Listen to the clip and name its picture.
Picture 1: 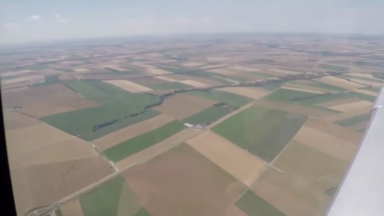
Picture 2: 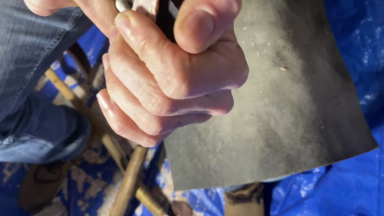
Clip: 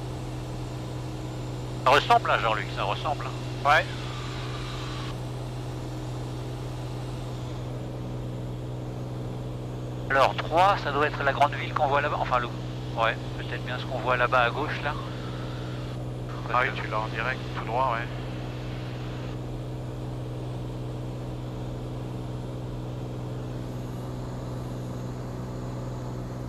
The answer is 1